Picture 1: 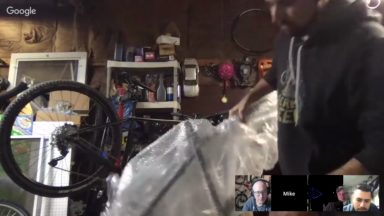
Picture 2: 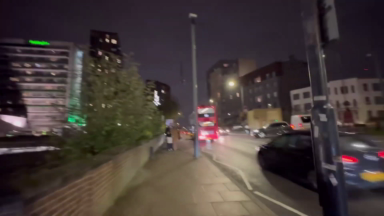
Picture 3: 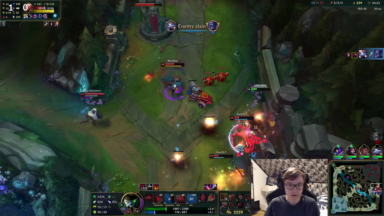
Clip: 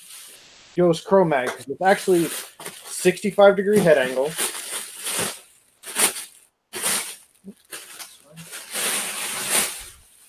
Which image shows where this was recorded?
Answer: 1